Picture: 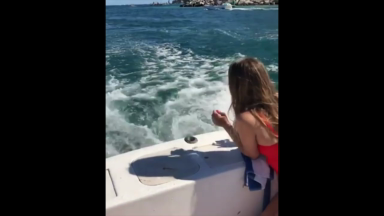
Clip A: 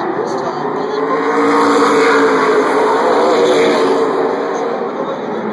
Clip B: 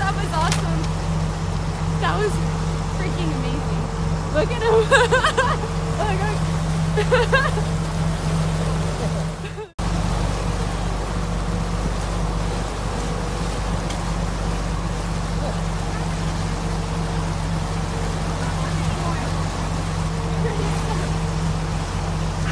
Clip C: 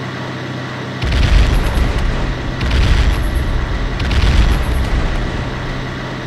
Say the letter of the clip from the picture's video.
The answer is B